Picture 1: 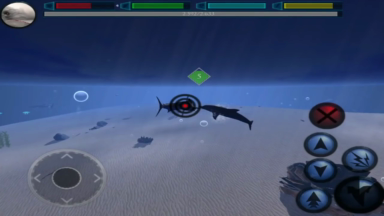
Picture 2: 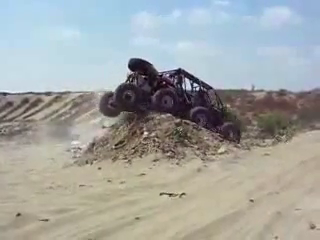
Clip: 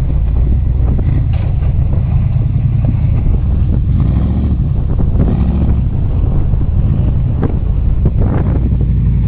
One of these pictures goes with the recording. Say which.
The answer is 2